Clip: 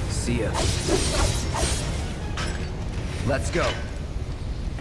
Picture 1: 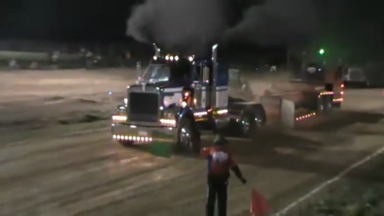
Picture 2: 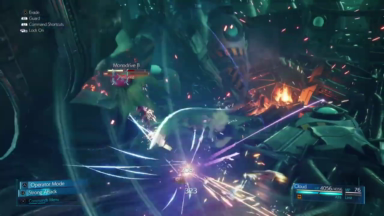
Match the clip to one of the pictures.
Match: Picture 2